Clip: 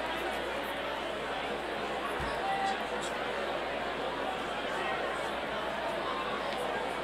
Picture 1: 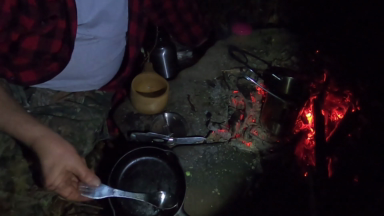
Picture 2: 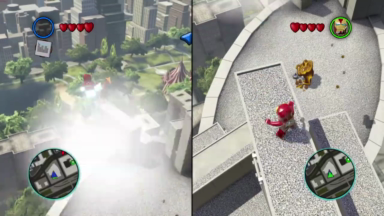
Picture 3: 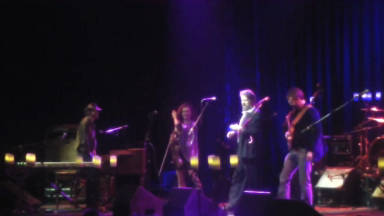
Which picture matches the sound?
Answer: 3